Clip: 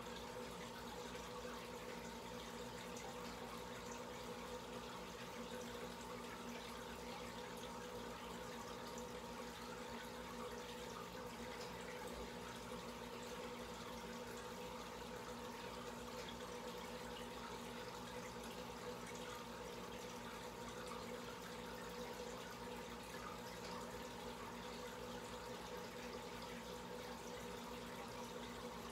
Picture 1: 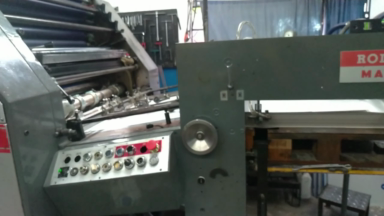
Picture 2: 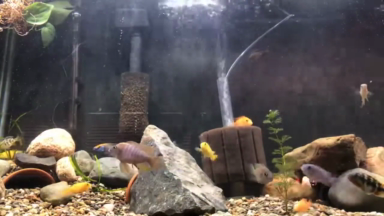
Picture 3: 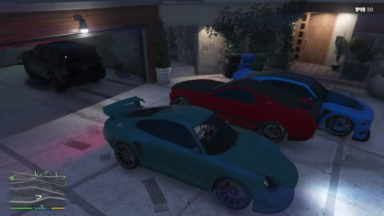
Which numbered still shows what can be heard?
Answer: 2